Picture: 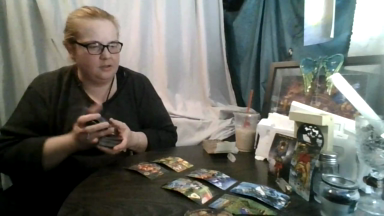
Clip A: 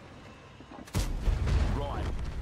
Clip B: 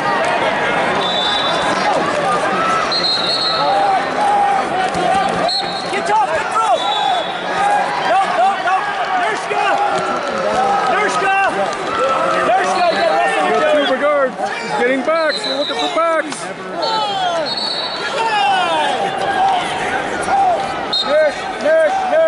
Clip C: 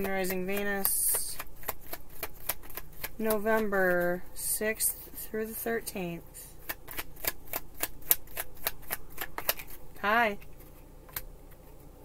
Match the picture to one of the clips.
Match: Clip C